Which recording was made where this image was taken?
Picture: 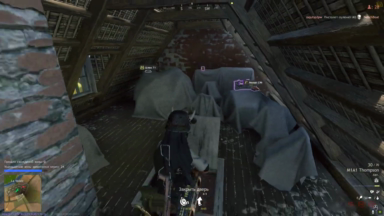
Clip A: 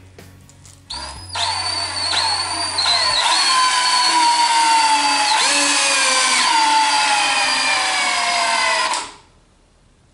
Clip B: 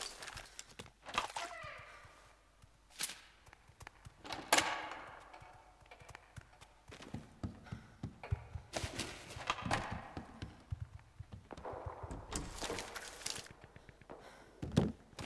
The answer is B